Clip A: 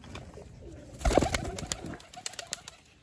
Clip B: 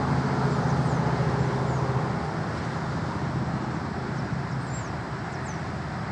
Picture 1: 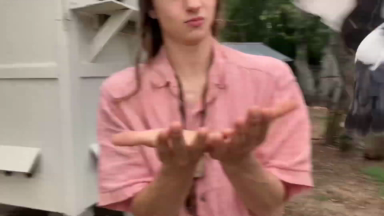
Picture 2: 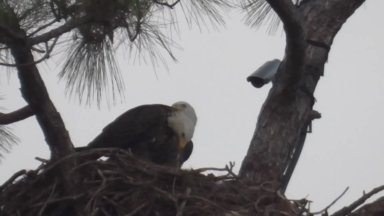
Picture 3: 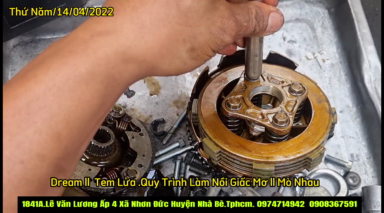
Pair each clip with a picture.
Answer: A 1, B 2